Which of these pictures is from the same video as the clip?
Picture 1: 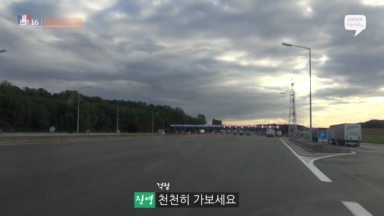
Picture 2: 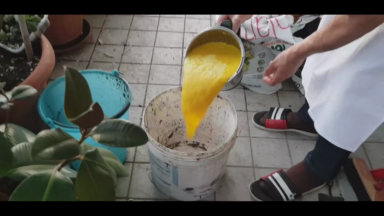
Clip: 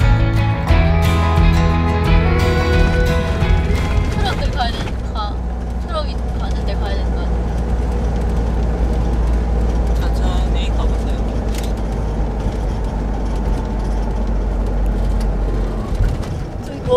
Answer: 1